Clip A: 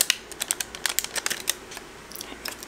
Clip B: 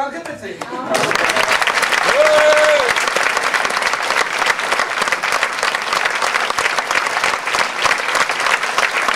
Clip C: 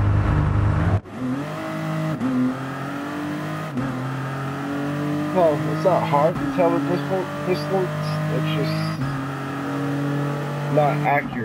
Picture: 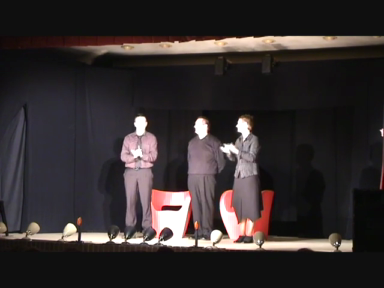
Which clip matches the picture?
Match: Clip B